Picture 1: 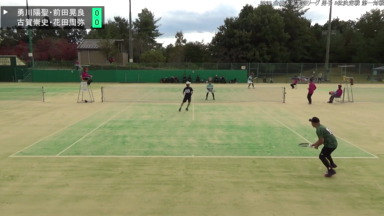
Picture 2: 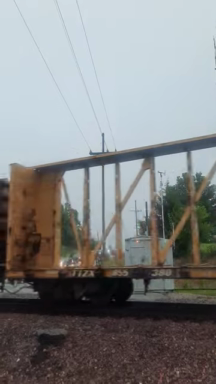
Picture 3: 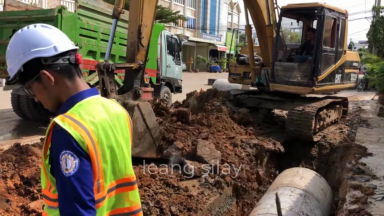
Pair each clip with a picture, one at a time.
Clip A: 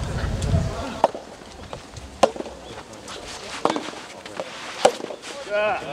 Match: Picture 1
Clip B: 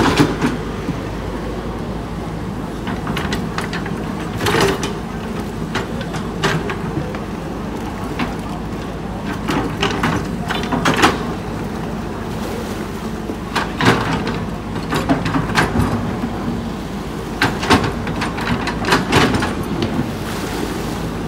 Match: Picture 3